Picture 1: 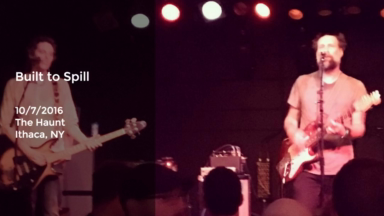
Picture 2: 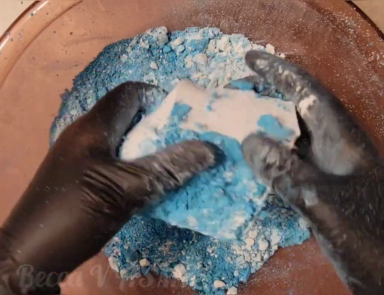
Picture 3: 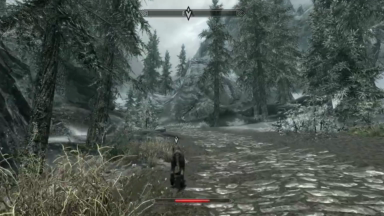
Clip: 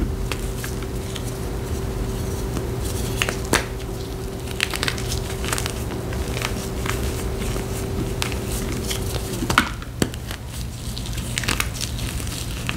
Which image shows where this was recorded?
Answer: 2